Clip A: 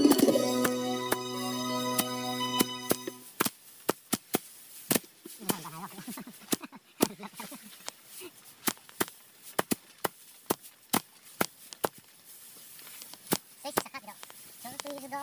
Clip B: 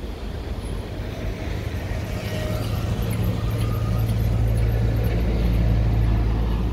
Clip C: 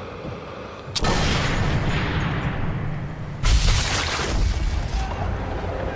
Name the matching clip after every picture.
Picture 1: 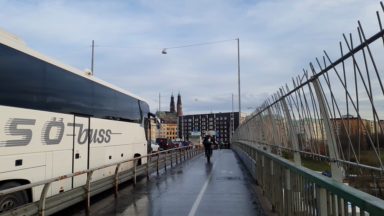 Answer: B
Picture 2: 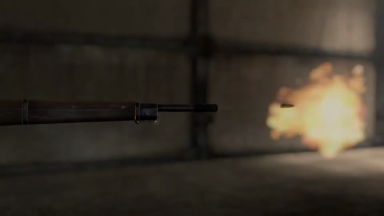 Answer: C